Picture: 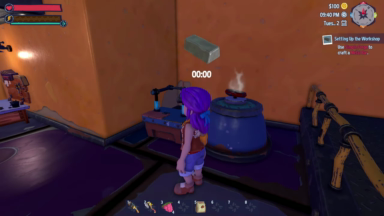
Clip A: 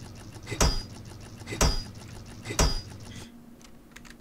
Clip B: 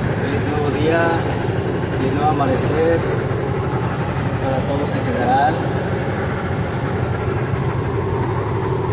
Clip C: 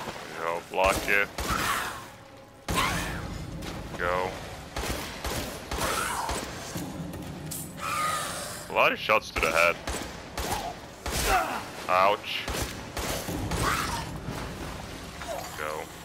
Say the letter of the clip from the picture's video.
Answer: A